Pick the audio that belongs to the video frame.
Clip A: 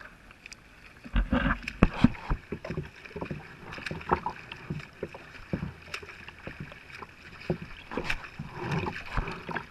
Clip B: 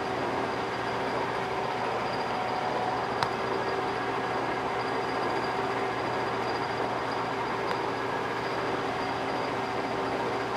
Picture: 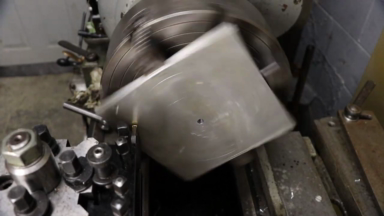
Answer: B